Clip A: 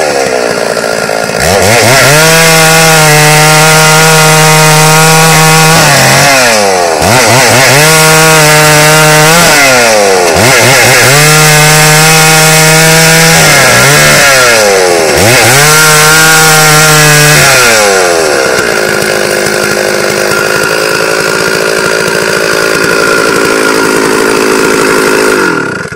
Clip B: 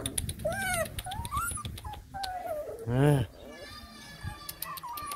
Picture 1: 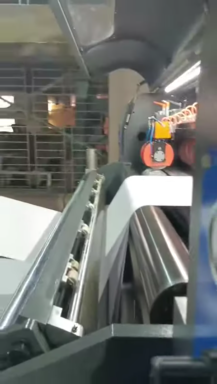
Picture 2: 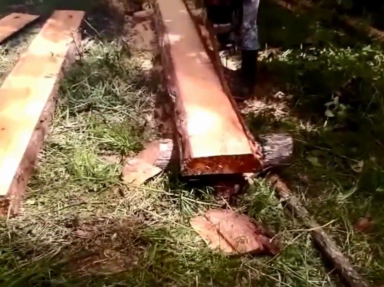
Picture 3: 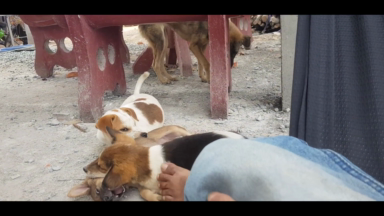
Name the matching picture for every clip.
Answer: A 2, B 3